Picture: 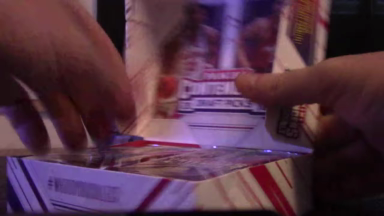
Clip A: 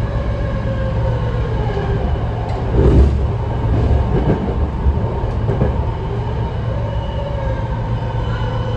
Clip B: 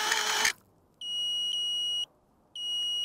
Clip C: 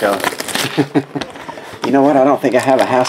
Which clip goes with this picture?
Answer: C